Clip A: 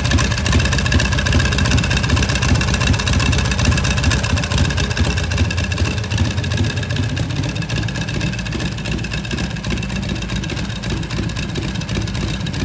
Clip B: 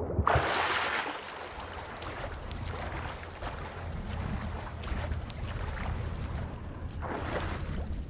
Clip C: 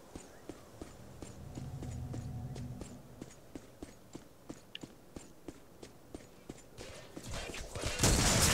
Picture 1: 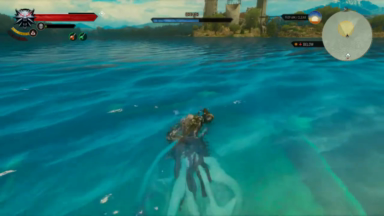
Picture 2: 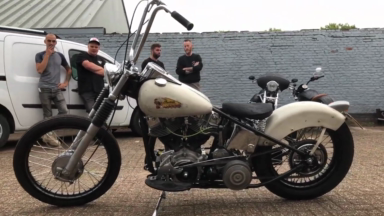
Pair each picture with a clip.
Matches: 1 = B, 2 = A